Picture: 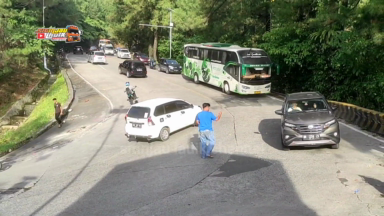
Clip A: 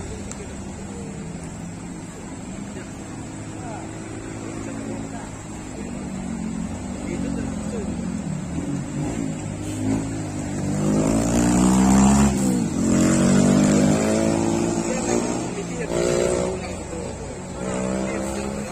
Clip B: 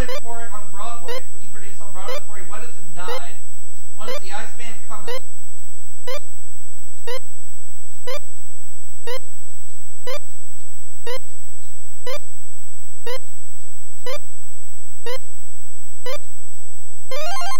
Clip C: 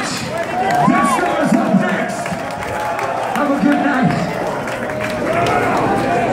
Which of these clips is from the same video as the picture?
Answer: A